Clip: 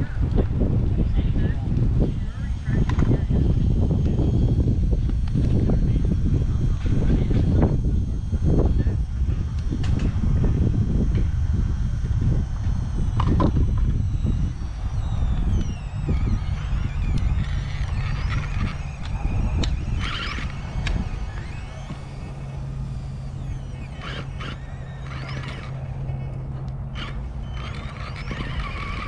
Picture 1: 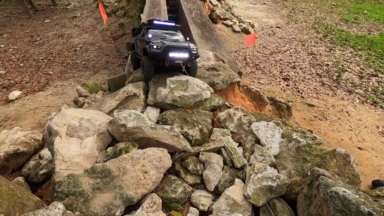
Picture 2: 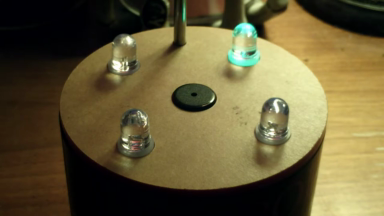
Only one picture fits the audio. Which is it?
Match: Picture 1